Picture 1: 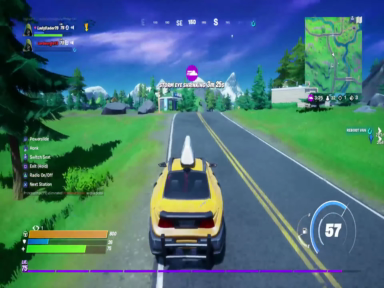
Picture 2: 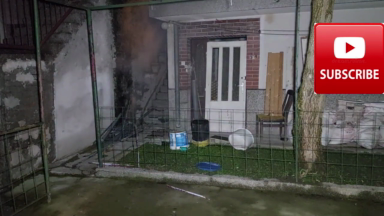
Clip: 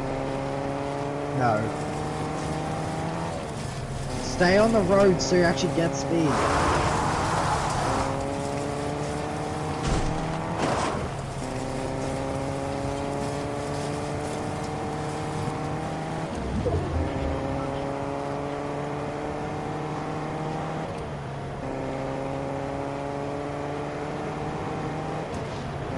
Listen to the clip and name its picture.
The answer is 1